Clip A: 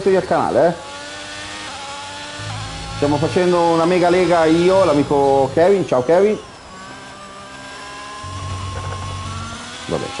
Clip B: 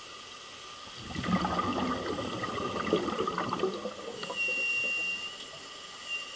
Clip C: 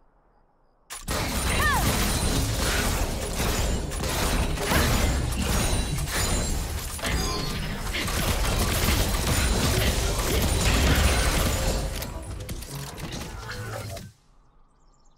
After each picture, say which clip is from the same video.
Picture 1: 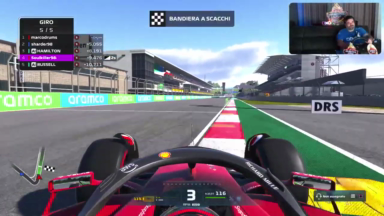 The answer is A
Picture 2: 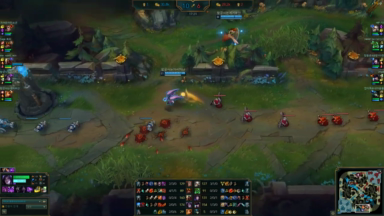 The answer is C